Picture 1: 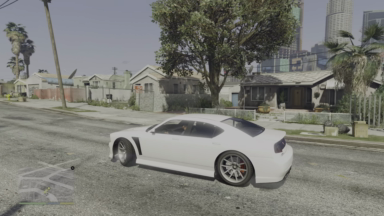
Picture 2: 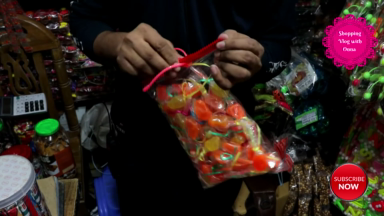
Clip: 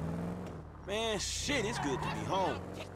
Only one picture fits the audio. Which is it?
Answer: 1